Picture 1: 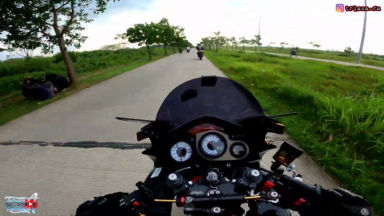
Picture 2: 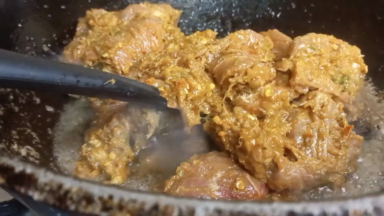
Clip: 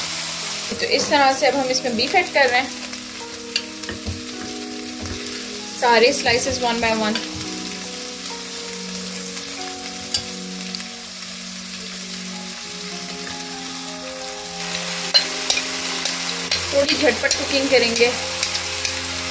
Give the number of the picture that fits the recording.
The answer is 2